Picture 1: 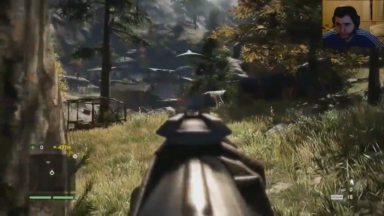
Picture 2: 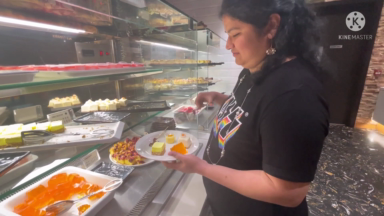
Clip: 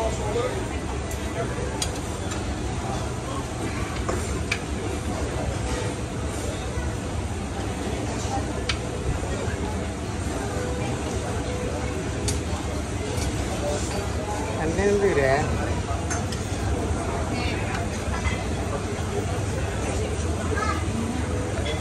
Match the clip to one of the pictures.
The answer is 2